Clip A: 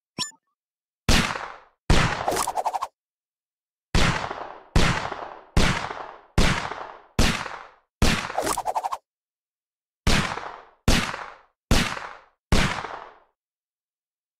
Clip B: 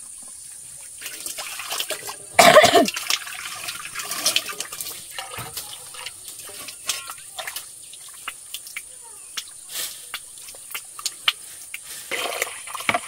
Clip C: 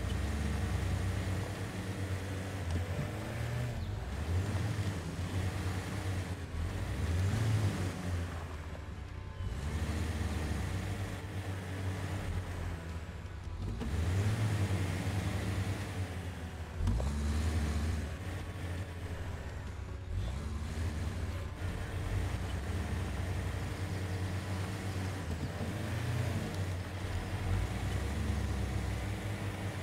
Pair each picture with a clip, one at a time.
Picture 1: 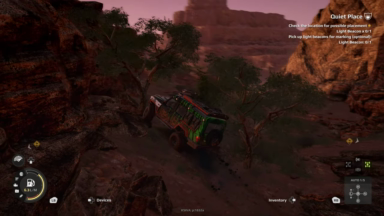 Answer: C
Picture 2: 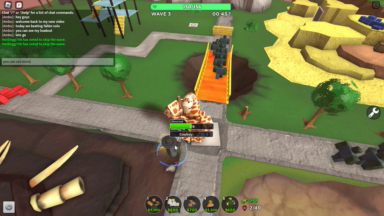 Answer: A